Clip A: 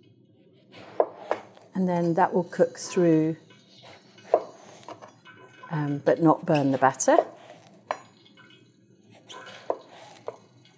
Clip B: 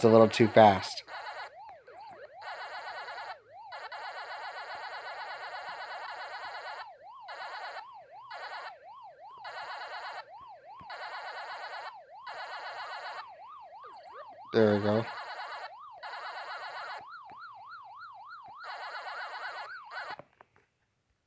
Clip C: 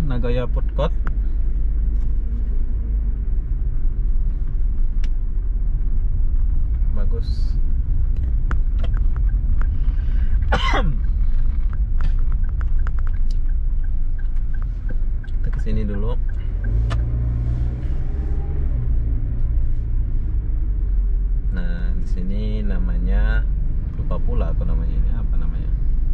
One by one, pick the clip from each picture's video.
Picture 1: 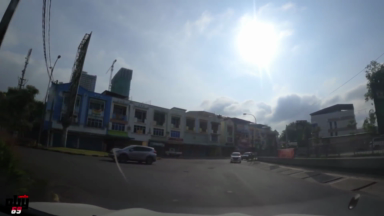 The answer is C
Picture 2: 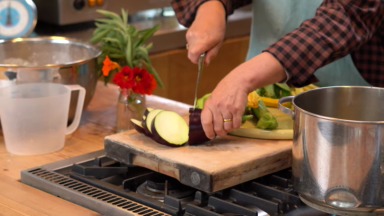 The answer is A